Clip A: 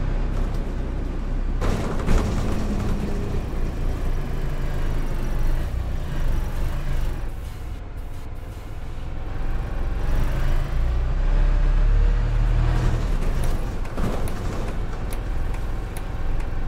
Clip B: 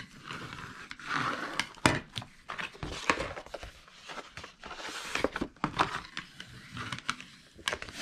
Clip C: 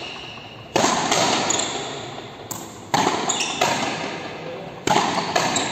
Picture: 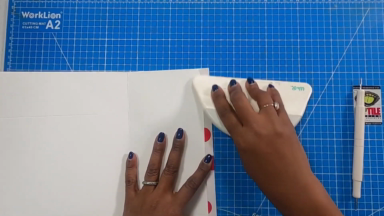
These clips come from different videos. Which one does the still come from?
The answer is B